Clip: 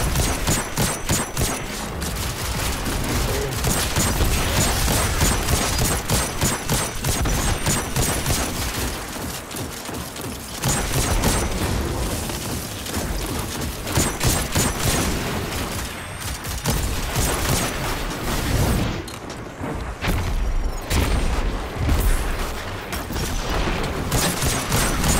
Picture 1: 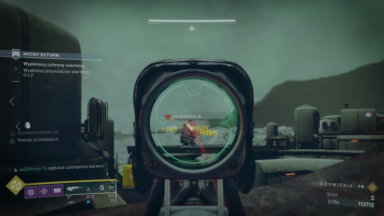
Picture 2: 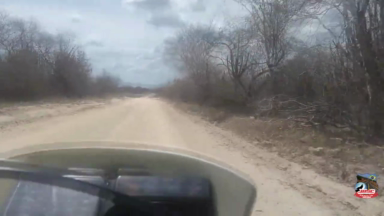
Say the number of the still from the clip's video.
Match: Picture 1